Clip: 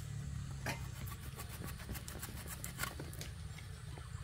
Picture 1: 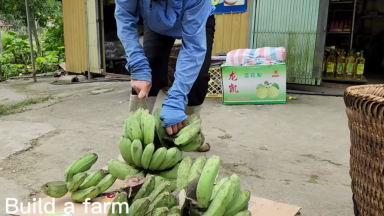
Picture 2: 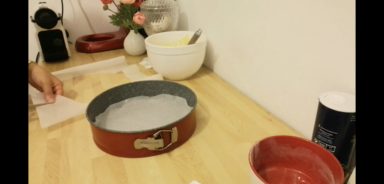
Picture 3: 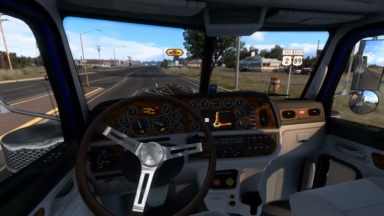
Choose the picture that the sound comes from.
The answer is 1